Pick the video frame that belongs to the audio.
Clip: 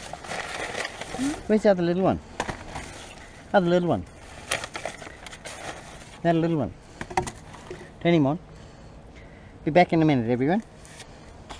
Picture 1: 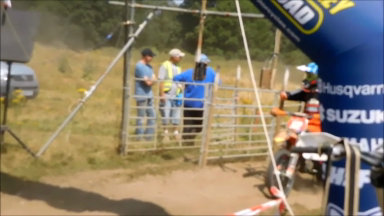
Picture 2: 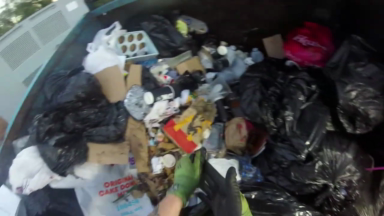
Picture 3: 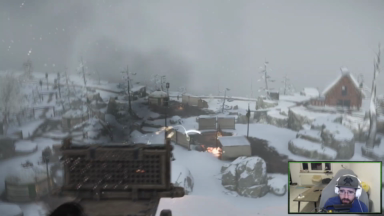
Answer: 2